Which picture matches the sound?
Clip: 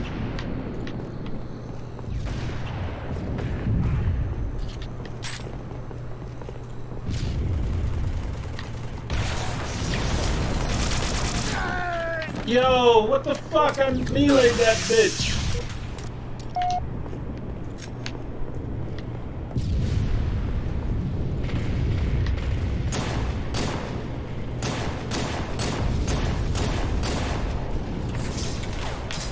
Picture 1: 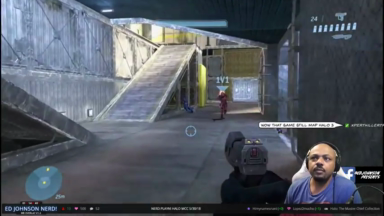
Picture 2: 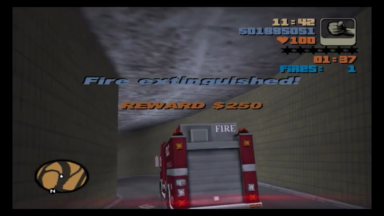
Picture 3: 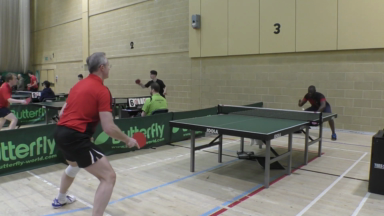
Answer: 1